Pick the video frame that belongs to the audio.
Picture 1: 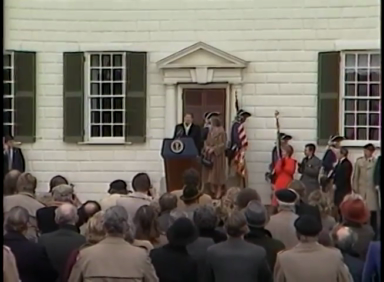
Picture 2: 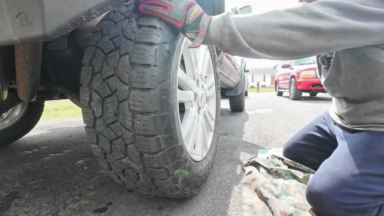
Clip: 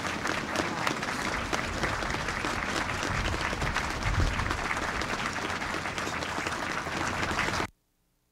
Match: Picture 1